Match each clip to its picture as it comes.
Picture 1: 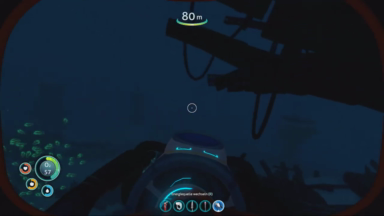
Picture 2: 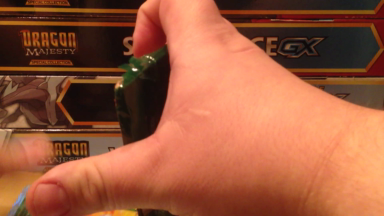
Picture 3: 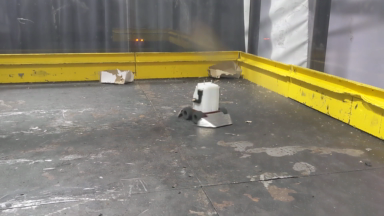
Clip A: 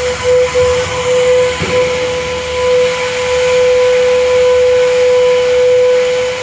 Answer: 3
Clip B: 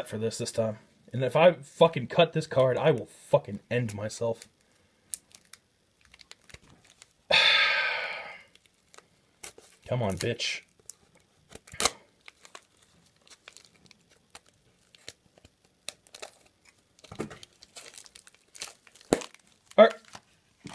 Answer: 2